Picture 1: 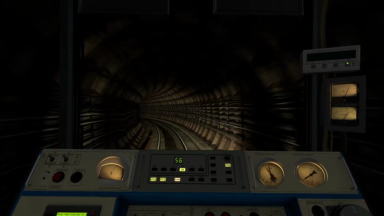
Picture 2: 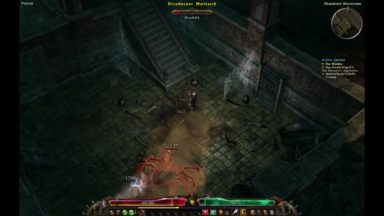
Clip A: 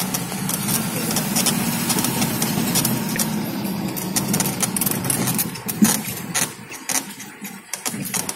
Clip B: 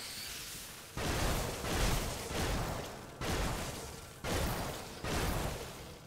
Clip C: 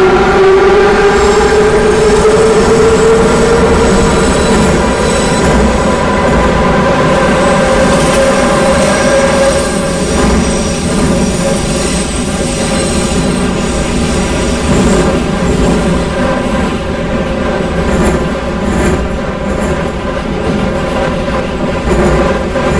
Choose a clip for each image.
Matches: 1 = C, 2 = B